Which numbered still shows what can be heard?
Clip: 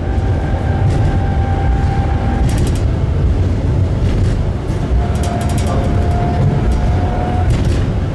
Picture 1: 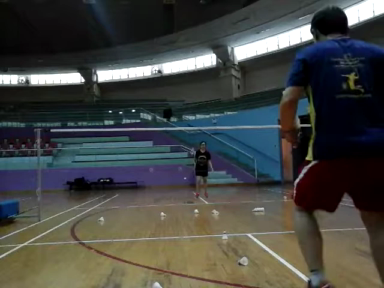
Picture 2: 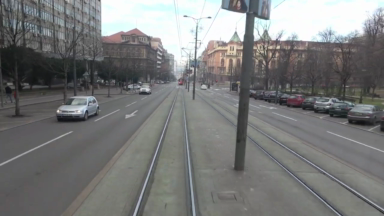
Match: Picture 2